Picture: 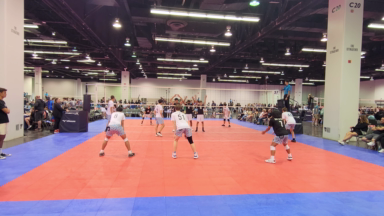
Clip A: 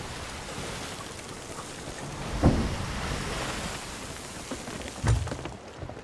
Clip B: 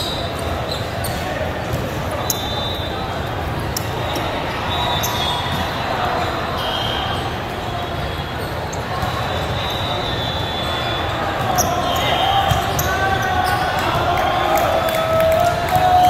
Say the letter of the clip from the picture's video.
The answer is B